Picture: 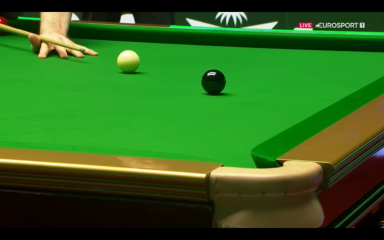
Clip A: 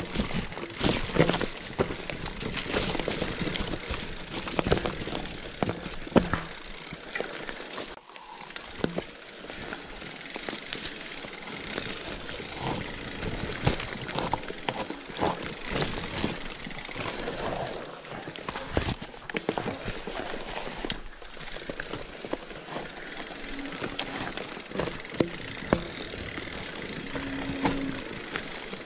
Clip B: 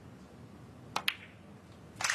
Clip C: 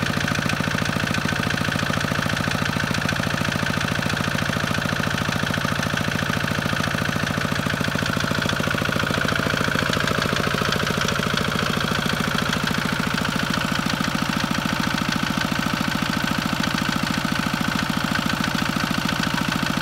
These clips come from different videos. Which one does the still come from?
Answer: B